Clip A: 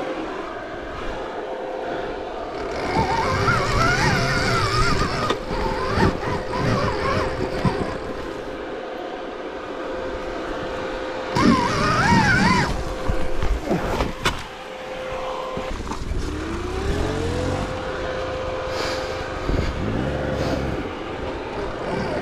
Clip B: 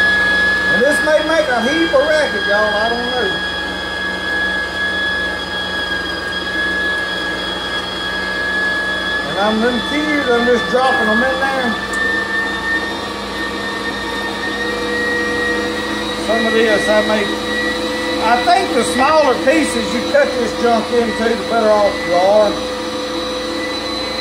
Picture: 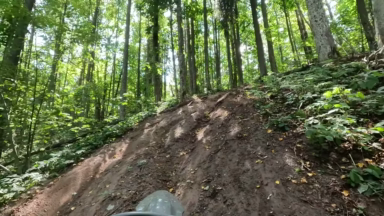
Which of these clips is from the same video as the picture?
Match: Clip A